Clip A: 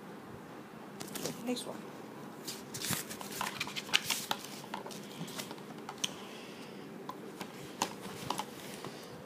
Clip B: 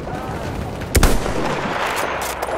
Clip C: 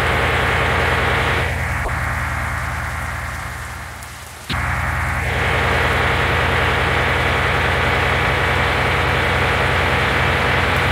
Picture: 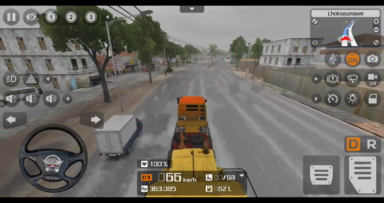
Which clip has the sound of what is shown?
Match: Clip C